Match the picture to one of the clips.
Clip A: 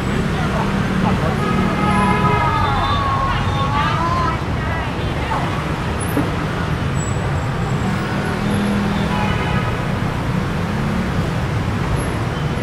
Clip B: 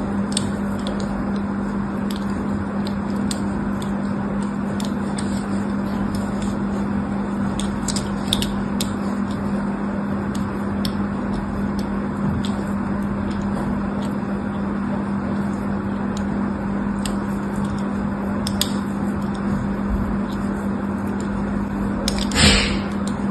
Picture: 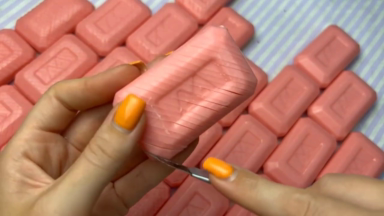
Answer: B